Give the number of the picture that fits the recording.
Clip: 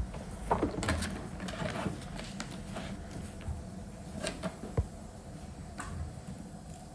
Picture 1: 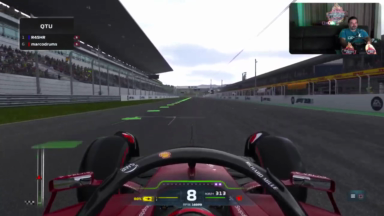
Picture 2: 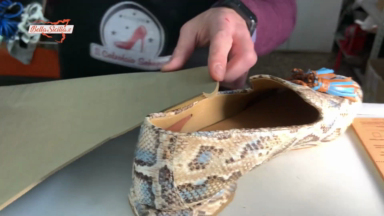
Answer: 2